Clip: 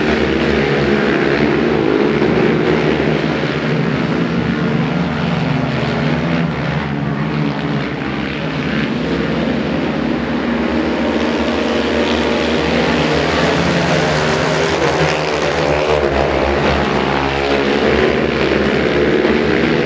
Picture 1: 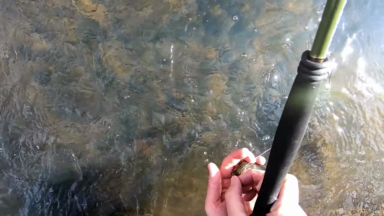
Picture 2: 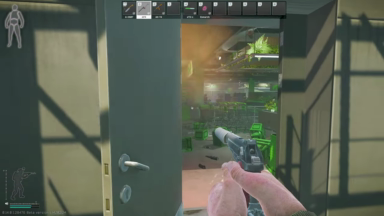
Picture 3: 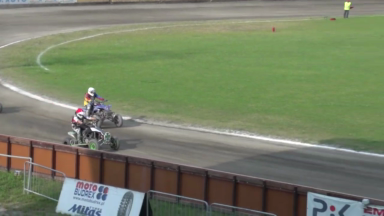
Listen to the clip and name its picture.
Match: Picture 3